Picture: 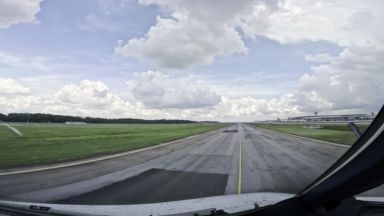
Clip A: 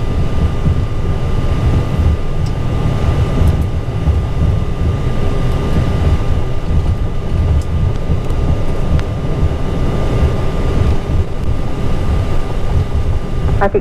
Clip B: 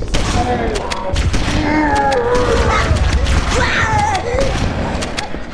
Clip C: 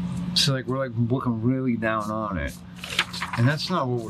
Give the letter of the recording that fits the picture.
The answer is A